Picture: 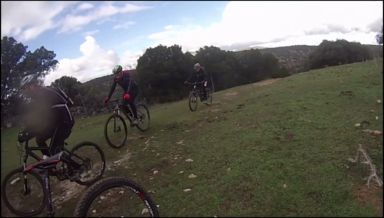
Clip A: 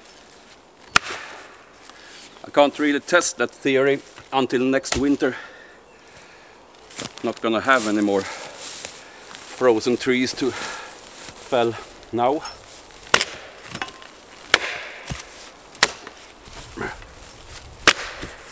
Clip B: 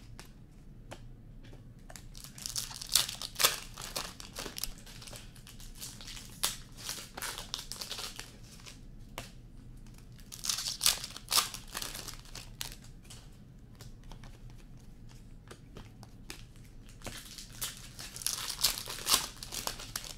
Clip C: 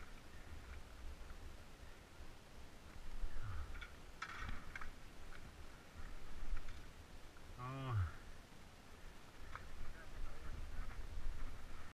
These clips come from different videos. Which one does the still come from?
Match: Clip C